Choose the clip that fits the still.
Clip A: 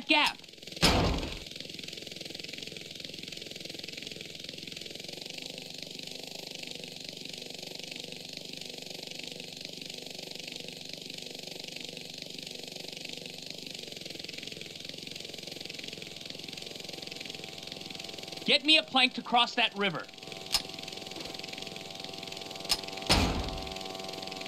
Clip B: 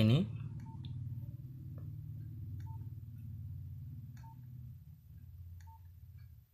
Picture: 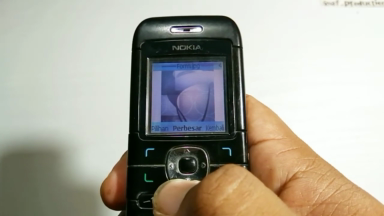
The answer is B